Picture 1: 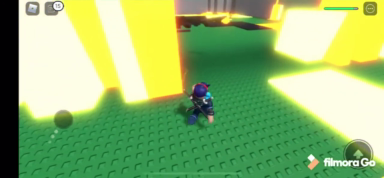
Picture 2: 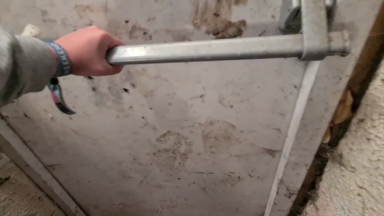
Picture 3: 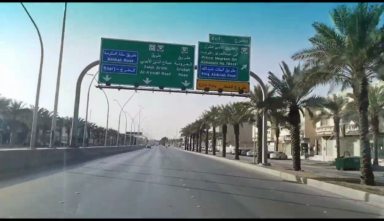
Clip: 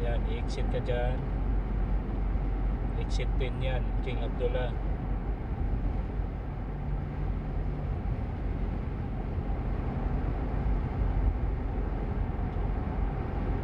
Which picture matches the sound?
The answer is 3